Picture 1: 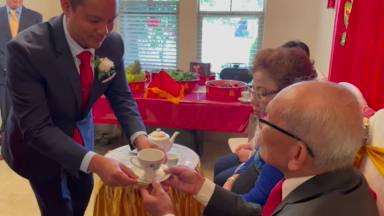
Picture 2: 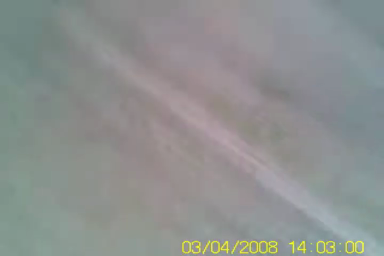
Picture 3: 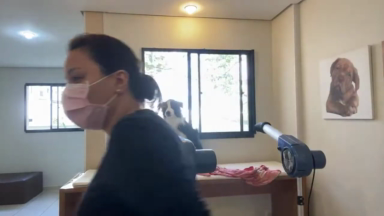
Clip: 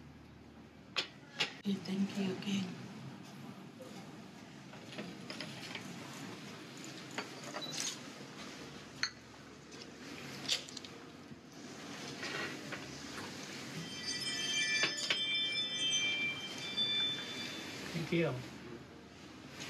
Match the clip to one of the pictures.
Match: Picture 1